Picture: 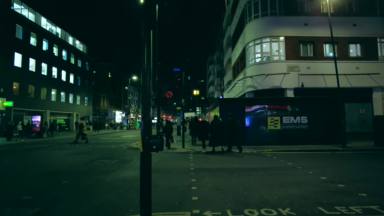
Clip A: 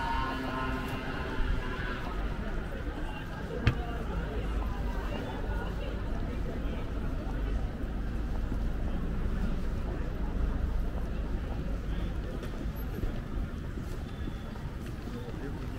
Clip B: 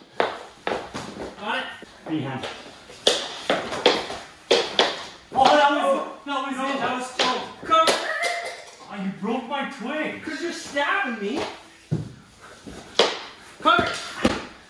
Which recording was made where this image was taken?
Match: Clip A